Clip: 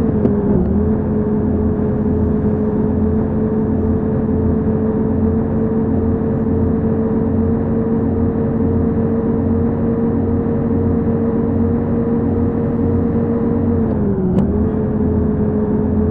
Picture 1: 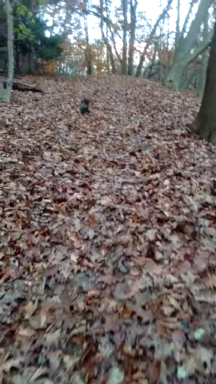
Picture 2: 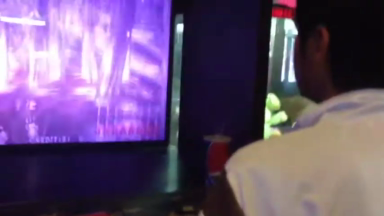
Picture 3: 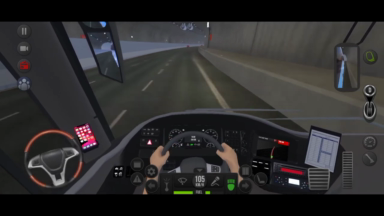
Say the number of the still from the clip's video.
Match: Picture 3